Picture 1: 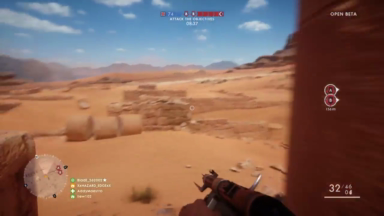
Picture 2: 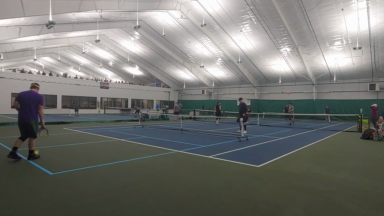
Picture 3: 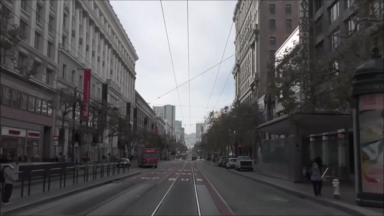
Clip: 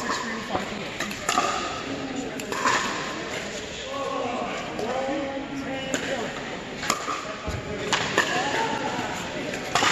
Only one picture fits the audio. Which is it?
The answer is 2